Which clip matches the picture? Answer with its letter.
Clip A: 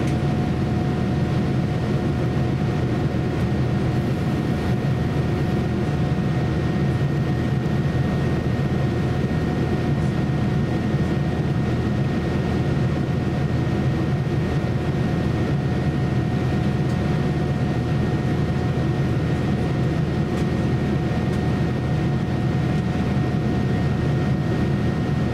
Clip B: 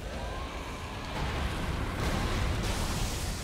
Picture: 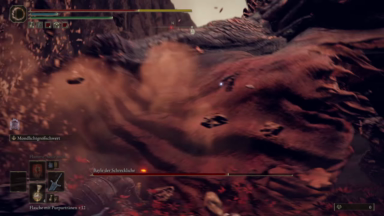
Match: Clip B